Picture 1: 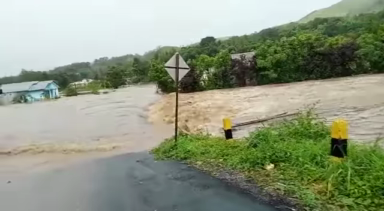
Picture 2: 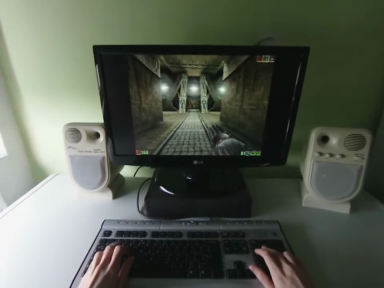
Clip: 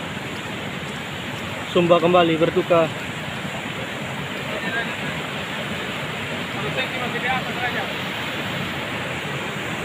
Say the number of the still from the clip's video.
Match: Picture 1